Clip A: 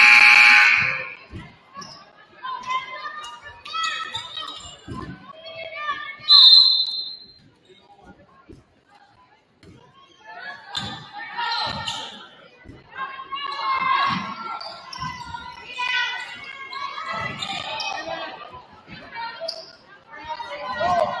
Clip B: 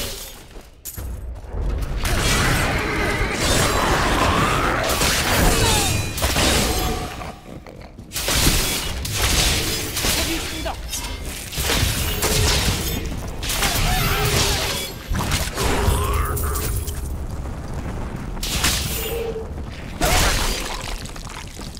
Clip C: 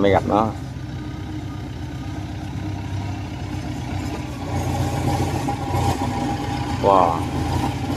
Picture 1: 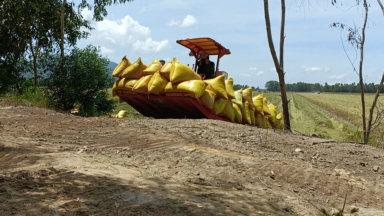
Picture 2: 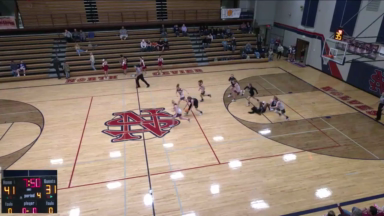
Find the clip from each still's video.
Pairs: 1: C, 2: A